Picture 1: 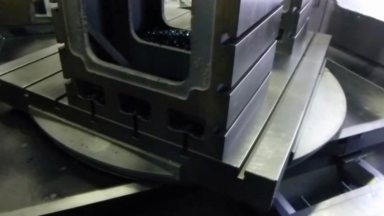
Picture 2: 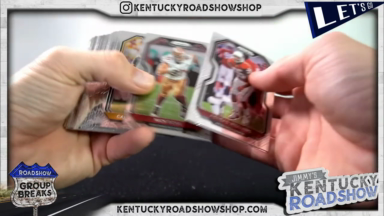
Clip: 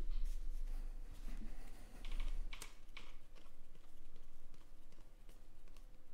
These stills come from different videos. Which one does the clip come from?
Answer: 2